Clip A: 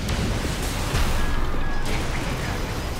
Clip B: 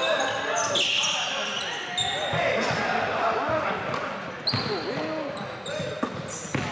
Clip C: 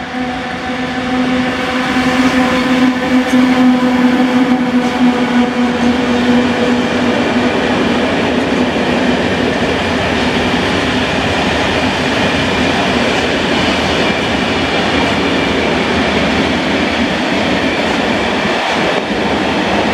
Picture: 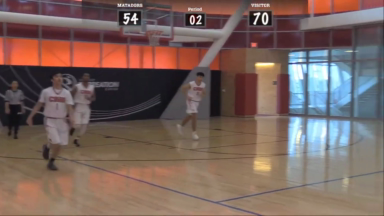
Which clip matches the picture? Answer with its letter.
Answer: B